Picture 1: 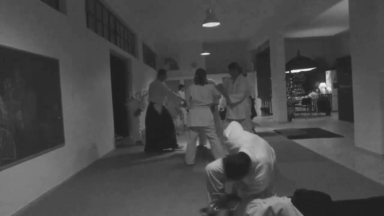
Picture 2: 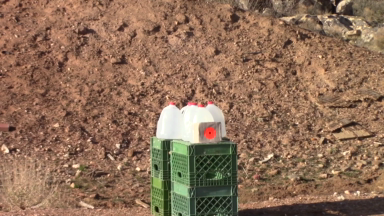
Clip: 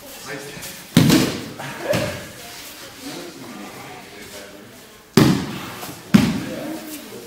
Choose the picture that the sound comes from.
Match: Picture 1